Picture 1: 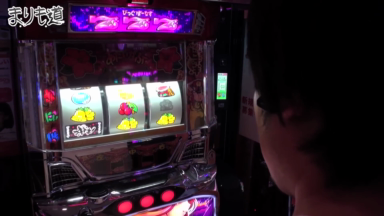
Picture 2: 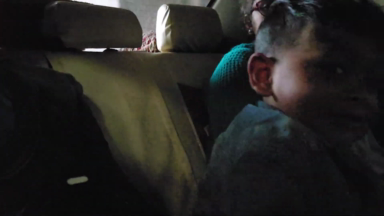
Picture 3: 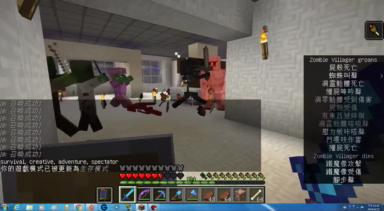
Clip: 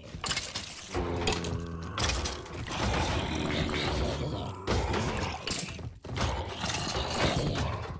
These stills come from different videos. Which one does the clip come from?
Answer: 3